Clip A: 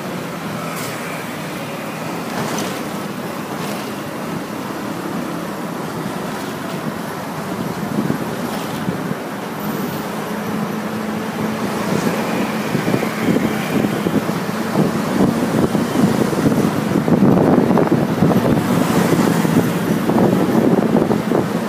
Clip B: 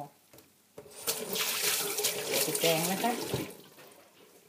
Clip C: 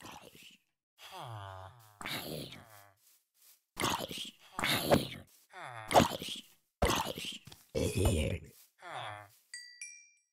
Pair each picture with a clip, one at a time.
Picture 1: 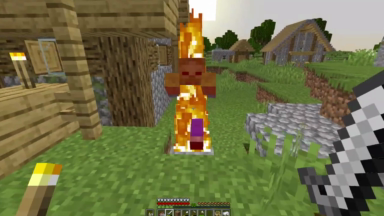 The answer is C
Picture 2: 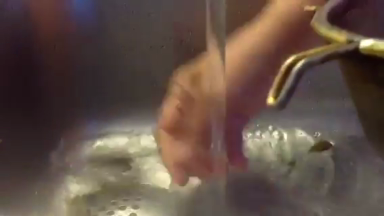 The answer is B